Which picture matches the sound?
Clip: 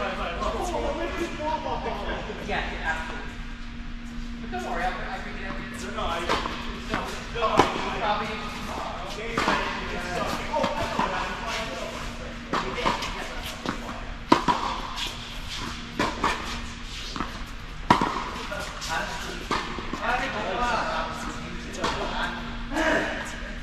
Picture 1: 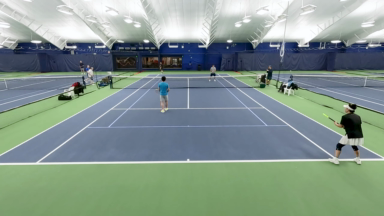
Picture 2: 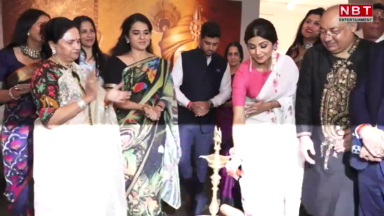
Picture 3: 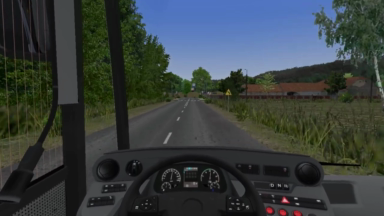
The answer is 1